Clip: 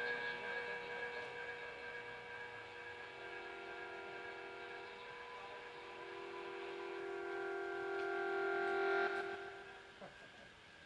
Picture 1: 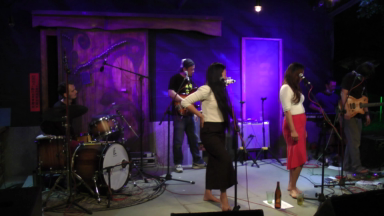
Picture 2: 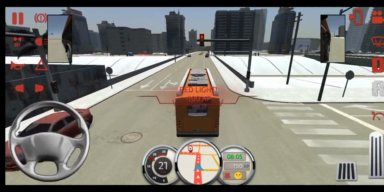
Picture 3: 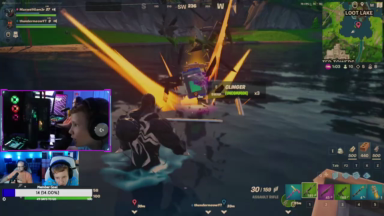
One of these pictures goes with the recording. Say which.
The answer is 1